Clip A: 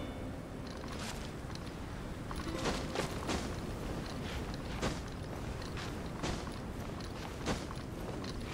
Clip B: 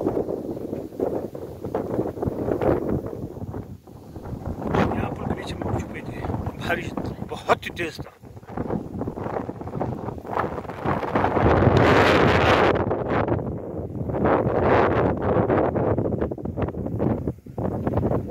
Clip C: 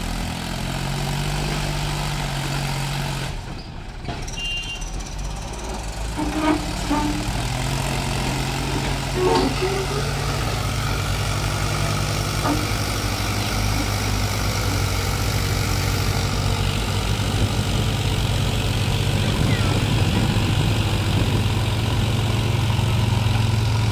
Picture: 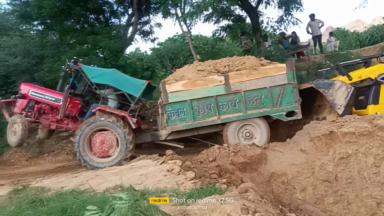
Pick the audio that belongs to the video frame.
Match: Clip C